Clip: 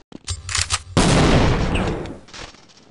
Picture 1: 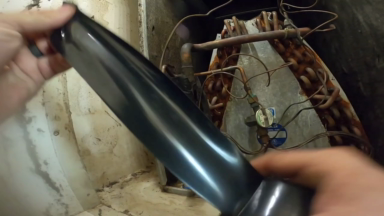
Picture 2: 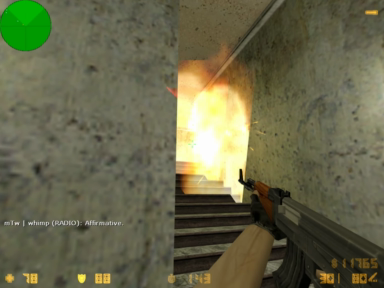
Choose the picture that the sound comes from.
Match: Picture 2